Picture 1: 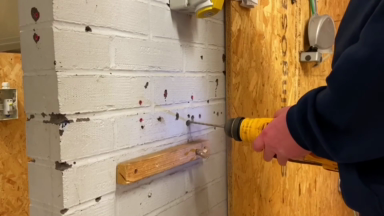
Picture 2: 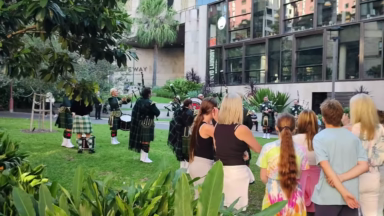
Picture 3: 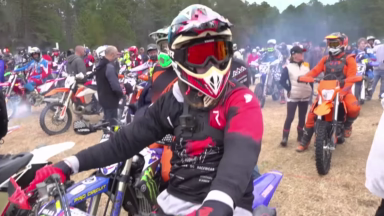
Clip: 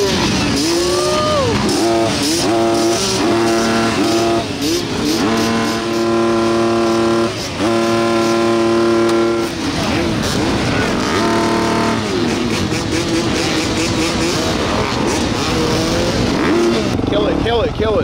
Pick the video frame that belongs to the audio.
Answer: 3